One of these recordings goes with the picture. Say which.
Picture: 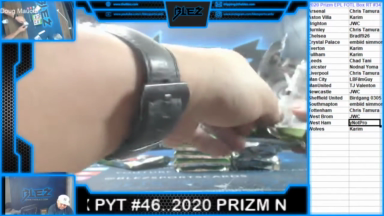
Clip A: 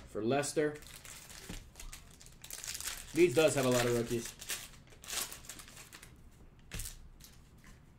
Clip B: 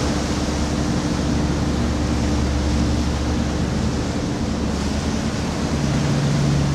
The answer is A